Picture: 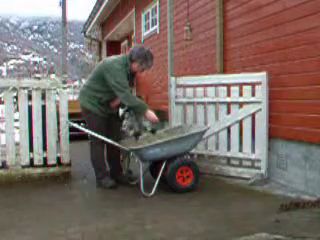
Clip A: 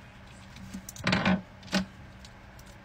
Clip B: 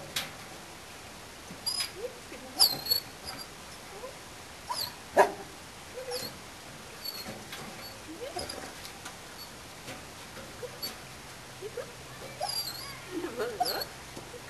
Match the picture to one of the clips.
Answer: B